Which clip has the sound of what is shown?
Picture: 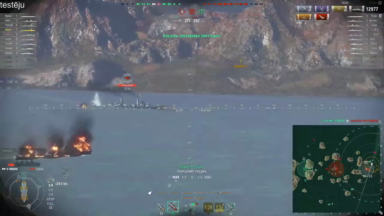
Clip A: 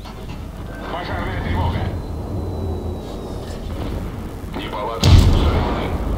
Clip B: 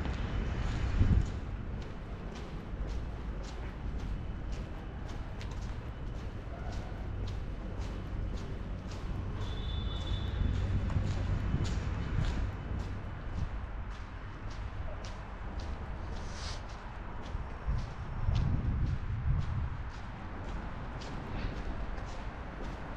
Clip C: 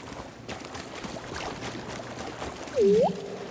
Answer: A